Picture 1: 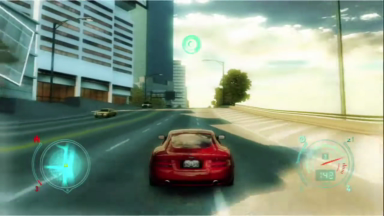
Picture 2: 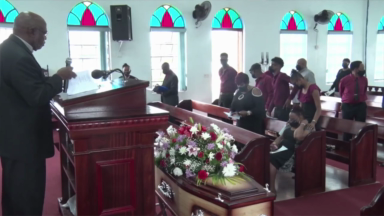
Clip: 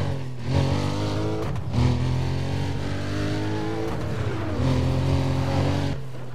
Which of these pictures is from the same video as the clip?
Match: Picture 1